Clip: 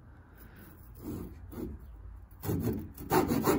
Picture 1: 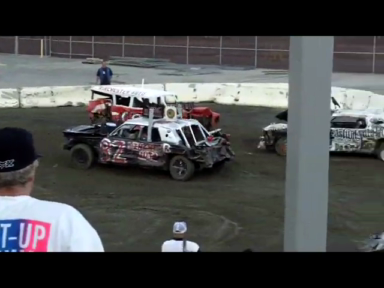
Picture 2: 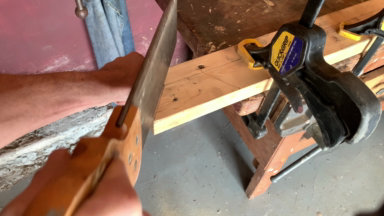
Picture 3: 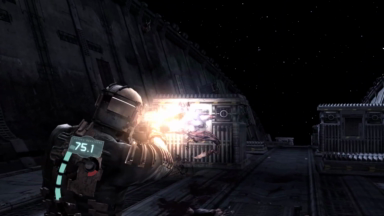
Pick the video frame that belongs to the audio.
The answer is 2